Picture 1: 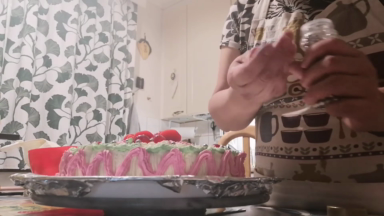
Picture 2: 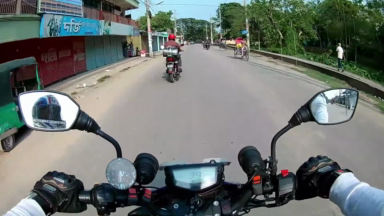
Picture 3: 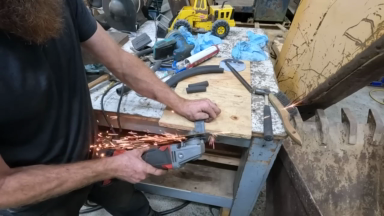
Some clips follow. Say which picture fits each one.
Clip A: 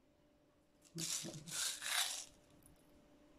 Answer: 1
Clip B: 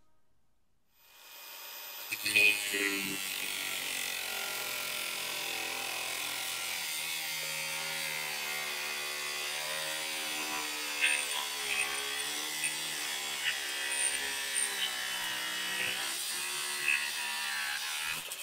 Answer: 3